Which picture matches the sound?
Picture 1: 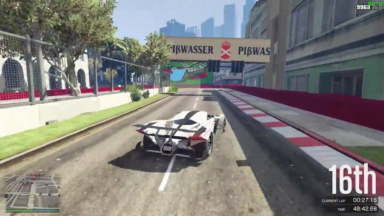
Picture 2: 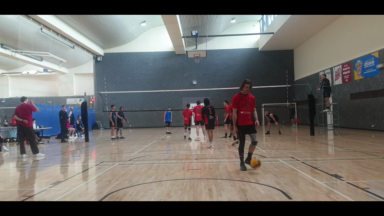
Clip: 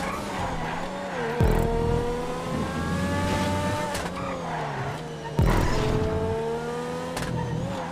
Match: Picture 1